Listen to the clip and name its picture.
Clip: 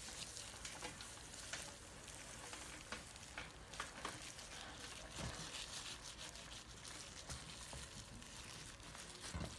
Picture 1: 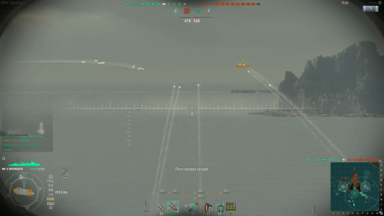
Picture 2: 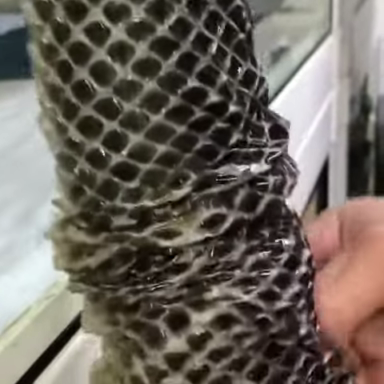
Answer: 2